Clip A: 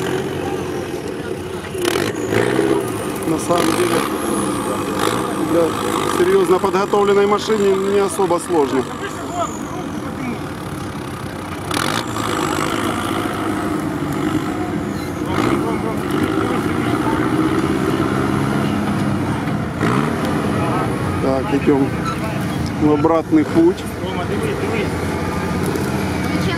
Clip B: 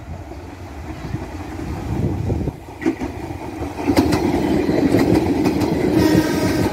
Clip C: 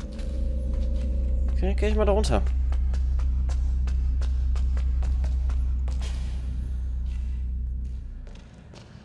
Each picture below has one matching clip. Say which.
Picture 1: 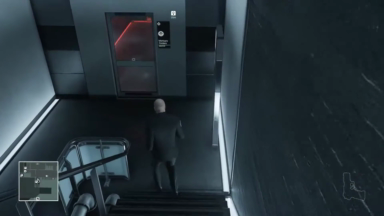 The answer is C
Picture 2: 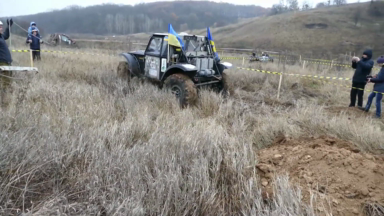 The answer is A